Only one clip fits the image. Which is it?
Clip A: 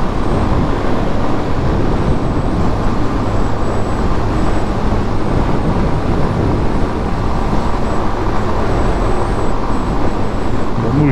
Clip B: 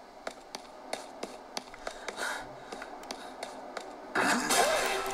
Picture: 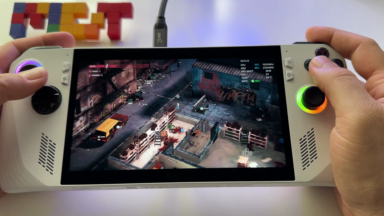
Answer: B